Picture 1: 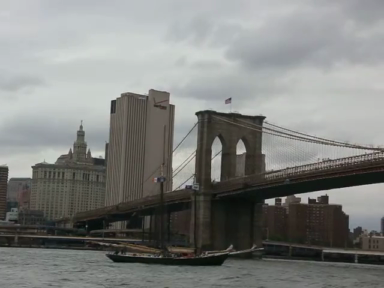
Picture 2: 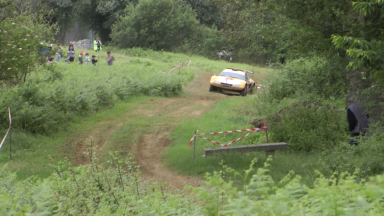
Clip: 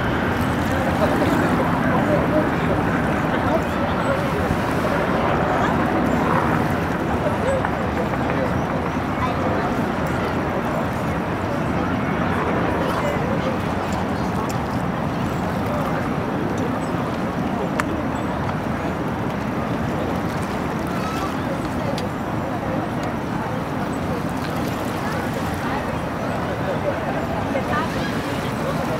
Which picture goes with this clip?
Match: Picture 1